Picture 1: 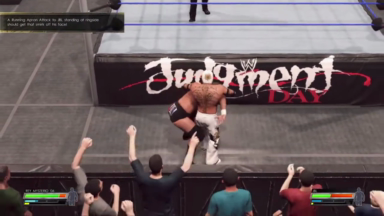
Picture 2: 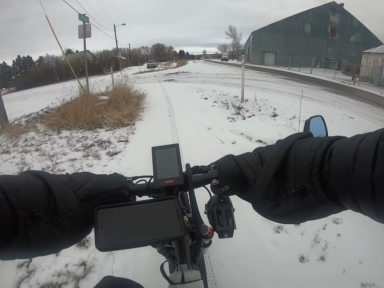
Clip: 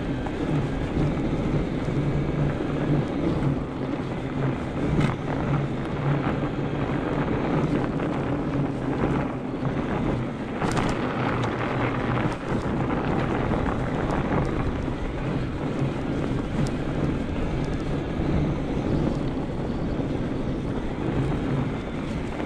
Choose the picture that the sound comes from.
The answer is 2